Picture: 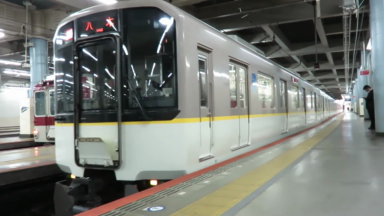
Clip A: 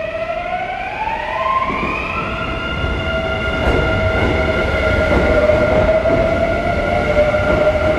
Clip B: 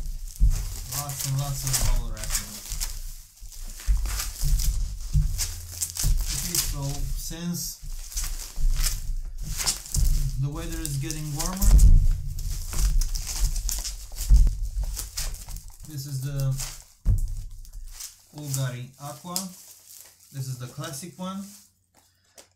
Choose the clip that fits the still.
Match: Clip A